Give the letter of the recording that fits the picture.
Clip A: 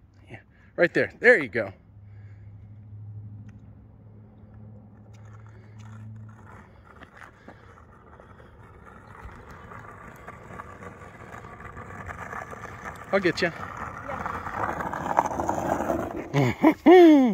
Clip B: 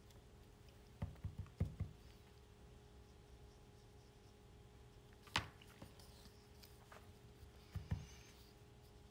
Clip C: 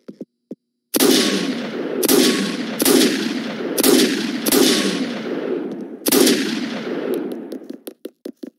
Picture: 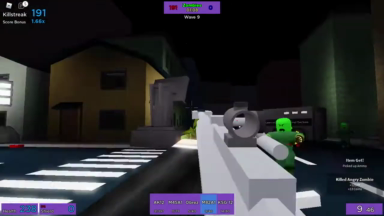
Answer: C